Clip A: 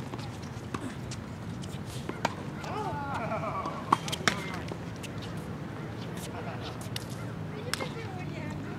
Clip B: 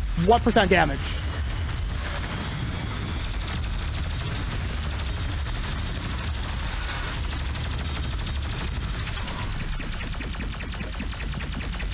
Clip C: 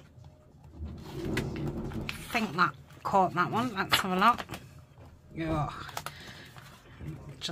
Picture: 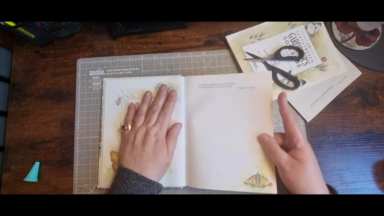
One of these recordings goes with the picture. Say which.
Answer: C